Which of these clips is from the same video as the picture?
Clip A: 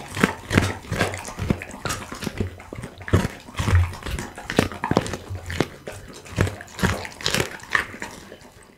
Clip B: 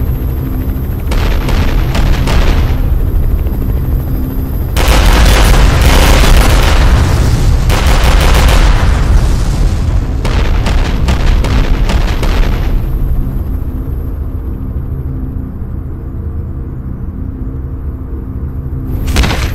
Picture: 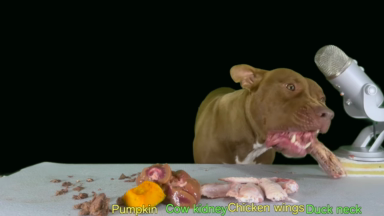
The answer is A